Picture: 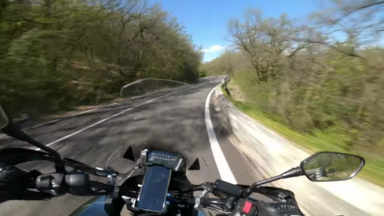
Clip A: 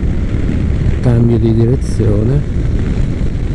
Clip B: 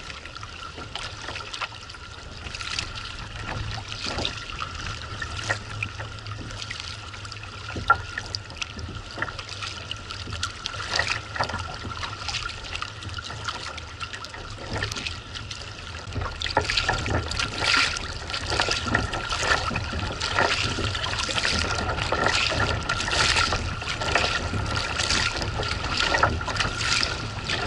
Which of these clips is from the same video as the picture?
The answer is A